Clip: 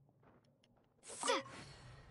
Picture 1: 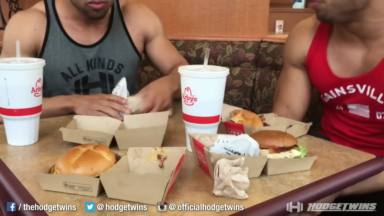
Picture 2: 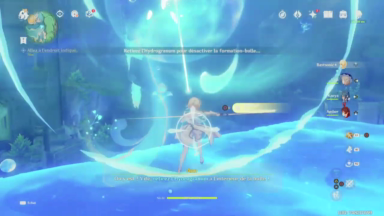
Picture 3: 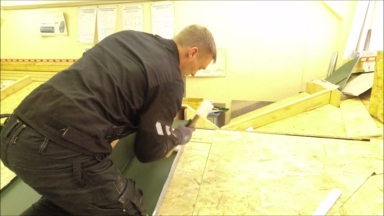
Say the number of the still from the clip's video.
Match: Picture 2